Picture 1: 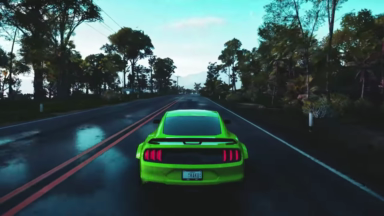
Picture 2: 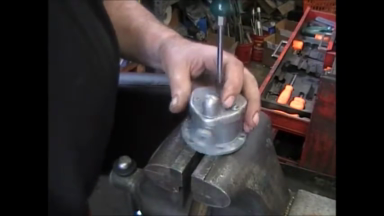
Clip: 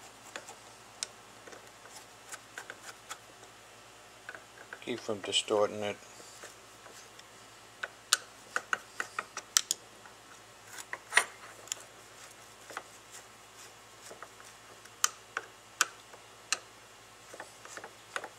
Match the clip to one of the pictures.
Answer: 2